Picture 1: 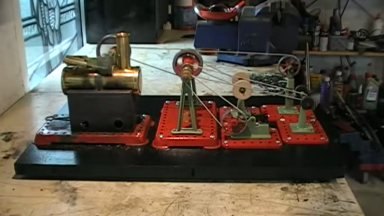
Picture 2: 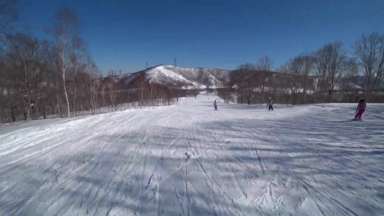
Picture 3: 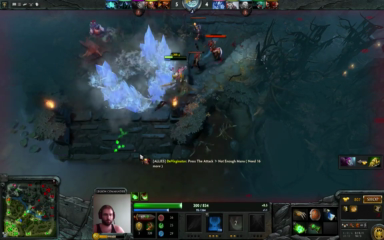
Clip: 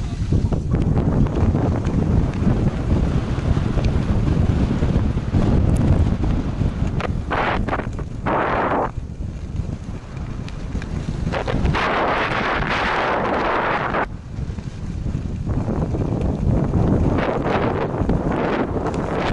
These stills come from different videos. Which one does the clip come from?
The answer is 2